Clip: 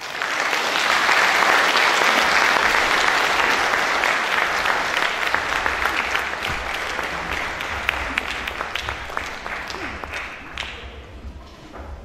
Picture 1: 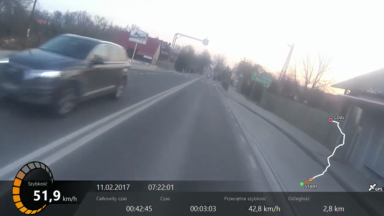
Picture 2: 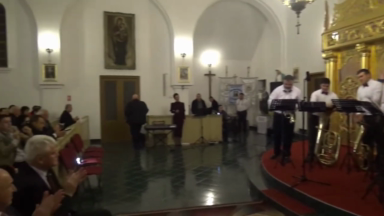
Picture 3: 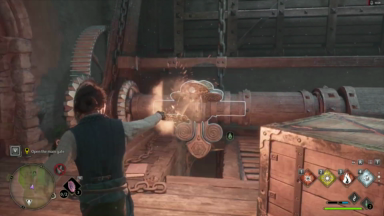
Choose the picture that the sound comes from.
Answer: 2